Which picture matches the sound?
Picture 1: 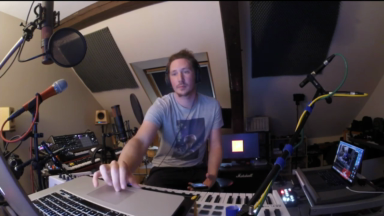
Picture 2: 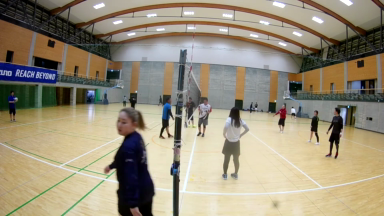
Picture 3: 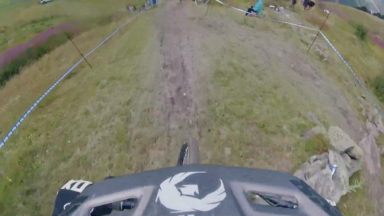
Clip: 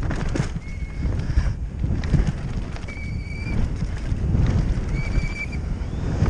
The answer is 3